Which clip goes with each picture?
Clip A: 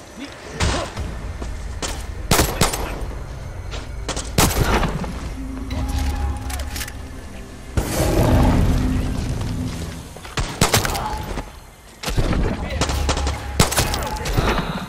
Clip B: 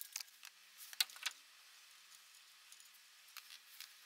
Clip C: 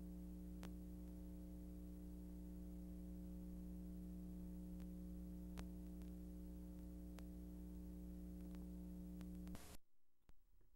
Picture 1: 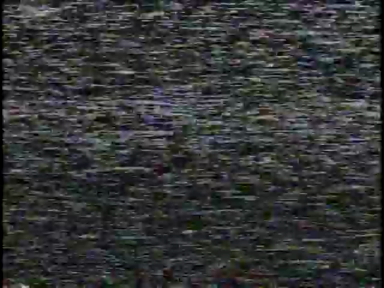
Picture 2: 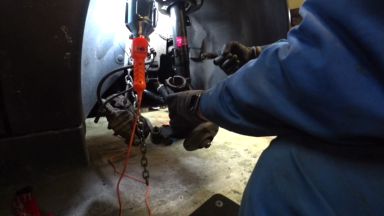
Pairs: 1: C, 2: B